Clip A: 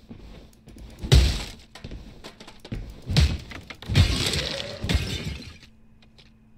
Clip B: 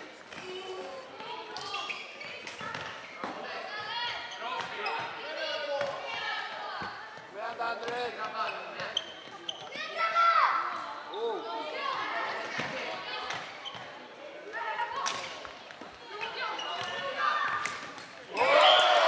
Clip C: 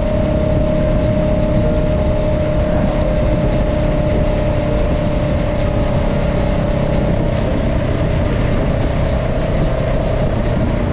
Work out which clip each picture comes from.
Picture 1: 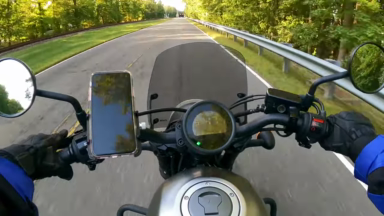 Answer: C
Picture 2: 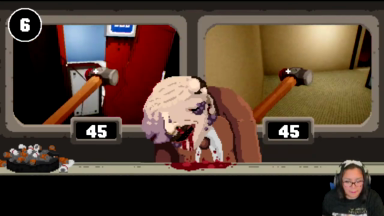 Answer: A